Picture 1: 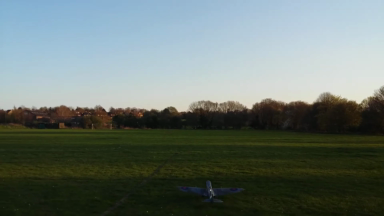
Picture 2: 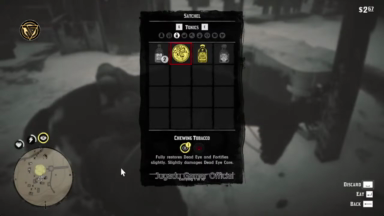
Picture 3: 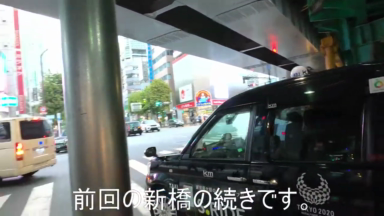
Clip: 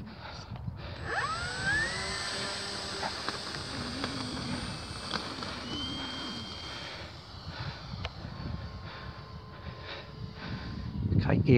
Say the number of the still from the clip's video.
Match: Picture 1